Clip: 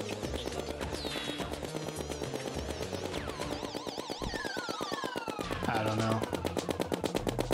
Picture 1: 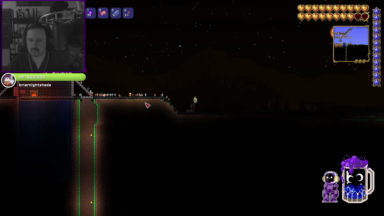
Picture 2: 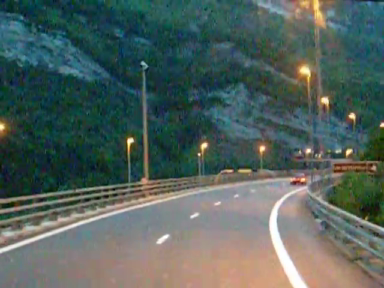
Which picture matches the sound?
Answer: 1